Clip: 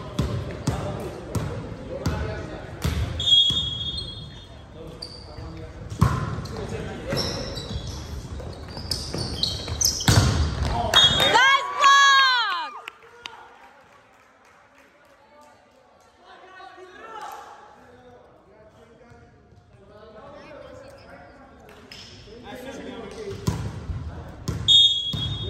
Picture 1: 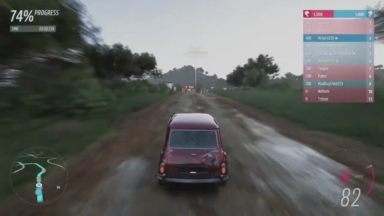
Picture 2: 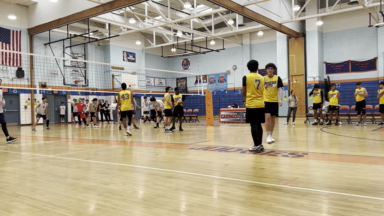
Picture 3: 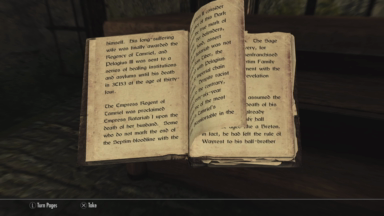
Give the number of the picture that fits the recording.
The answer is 2